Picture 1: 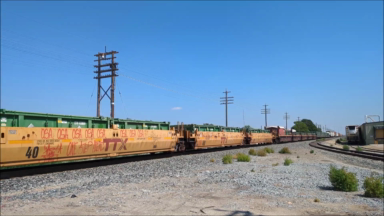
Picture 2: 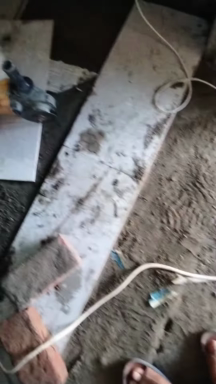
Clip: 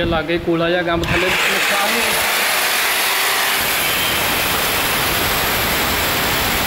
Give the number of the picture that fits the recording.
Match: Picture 2